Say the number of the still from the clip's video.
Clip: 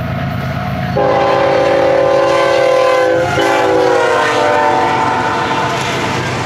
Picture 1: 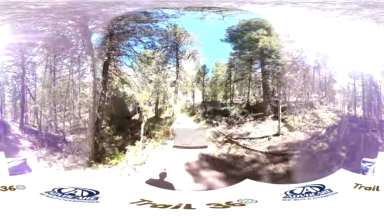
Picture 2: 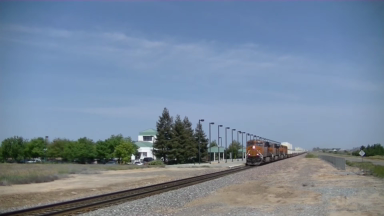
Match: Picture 2